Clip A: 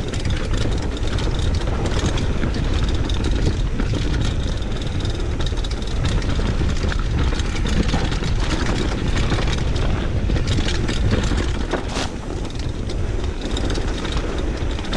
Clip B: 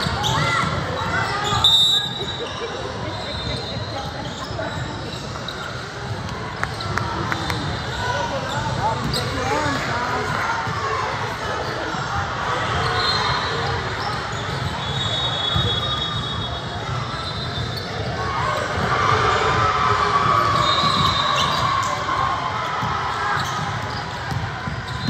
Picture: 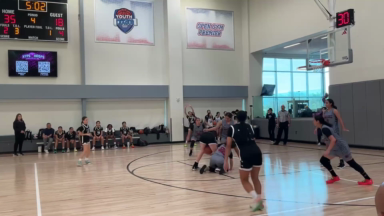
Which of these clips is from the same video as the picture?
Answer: B